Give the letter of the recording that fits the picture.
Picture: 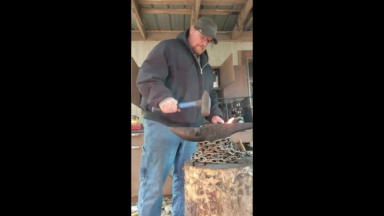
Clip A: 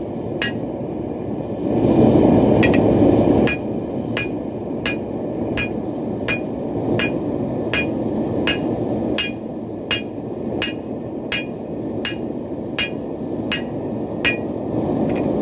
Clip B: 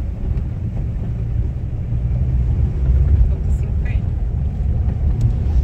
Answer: A